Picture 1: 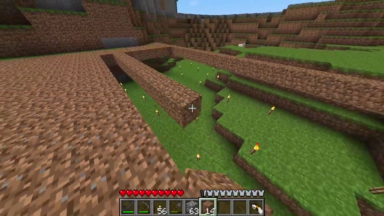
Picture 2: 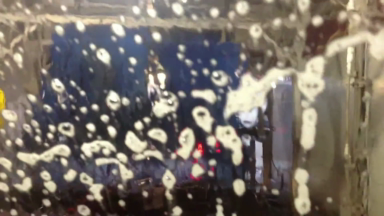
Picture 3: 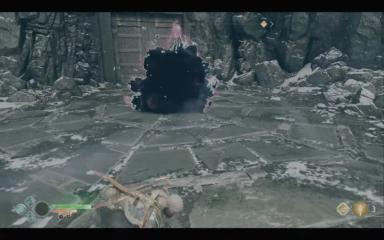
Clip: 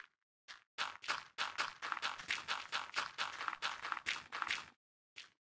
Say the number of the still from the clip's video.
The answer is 1